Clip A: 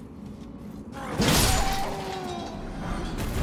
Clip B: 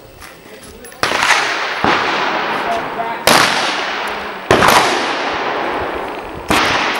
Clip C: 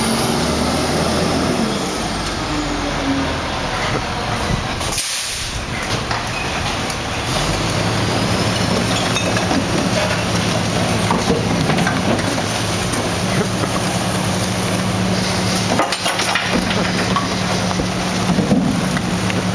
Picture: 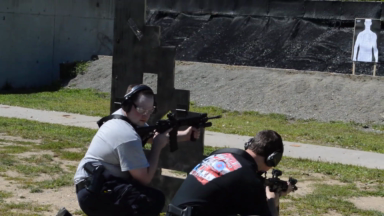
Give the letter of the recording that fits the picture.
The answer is B